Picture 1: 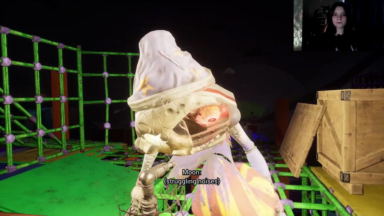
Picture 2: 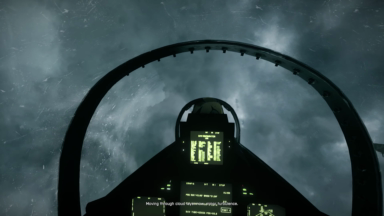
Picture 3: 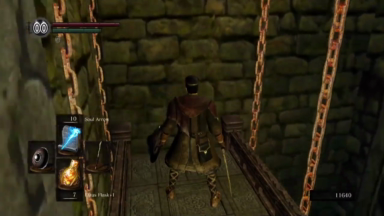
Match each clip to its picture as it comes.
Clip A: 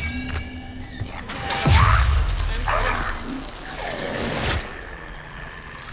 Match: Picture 1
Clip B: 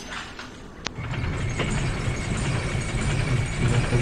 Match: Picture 3